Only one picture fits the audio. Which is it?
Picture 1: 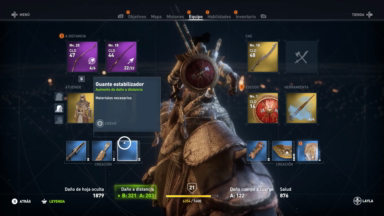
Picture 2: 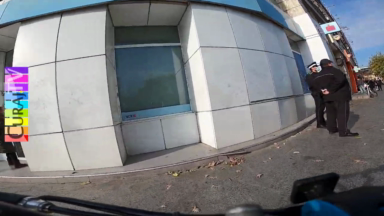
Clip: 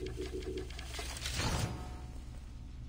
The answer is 1